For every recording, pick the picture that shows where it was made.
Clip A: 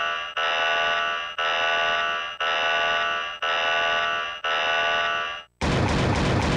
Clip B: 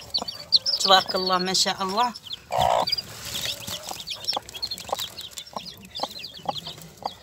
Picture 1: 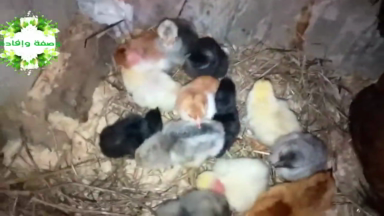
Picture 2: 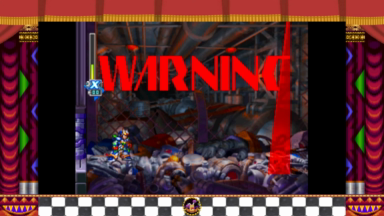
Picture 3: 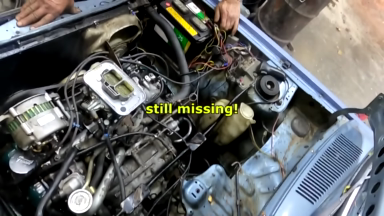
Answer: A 2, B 1